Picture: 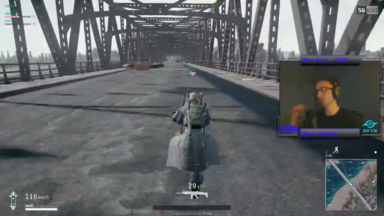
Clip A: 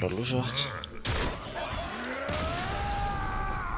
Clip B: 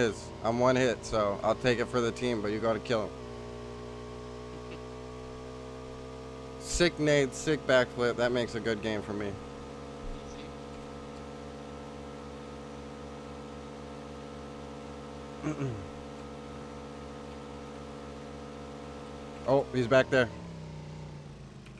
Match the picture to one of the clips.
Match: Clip B